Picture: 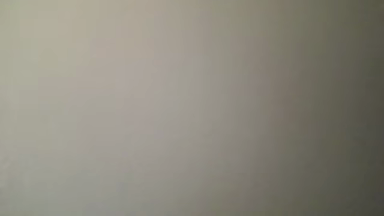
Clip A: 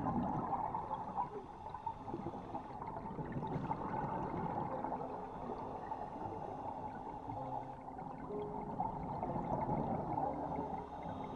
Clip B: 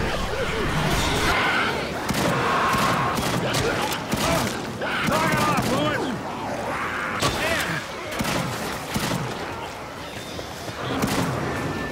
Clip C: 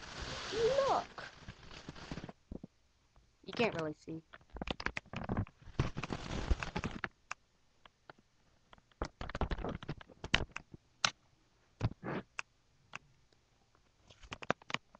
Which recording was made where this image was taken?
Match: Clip C